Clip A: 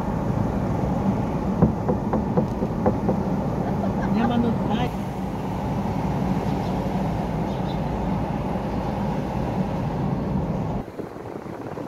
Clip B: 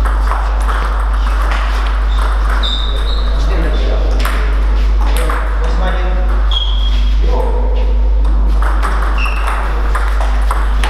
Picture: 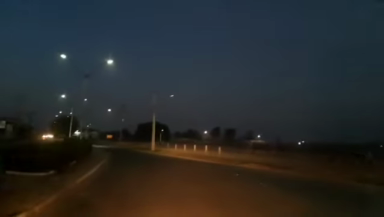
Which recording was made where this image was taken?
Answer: A